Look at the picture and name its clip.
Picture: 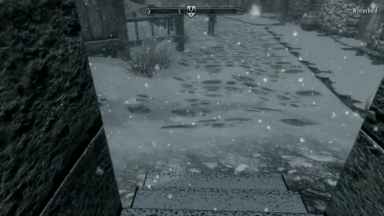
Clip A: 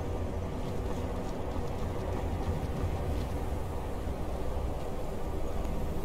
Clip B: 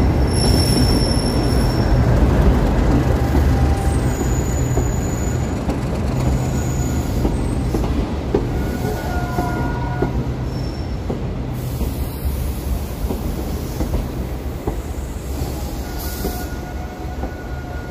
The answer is A